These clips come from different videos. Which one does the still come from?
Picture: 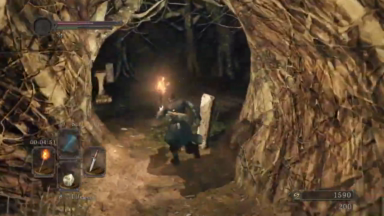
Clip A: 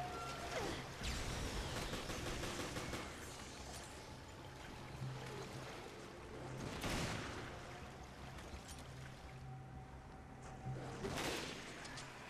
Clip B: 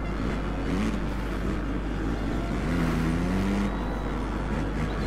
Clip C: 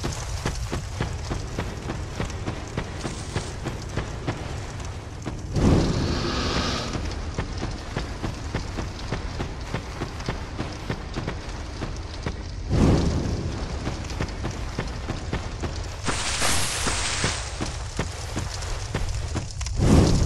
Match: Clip C